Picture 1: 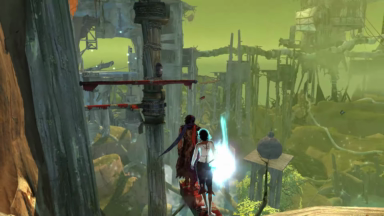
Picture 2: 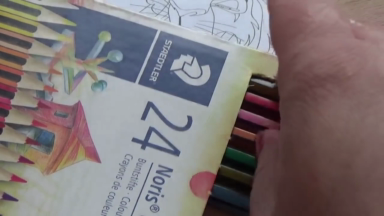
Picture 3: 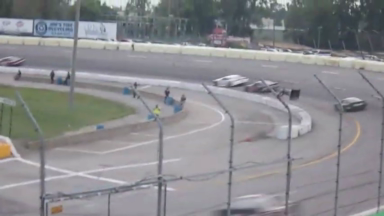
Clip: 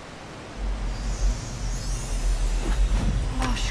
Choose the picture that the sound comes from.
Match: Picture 1